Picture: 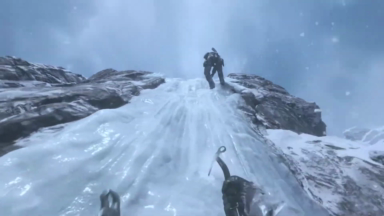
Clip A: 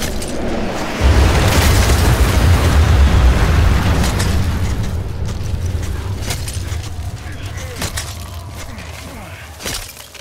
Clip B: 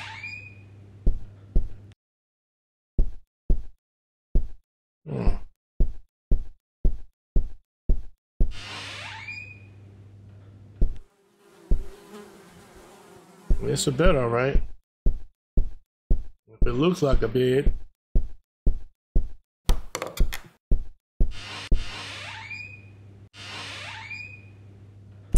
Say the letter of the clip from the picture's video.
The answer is A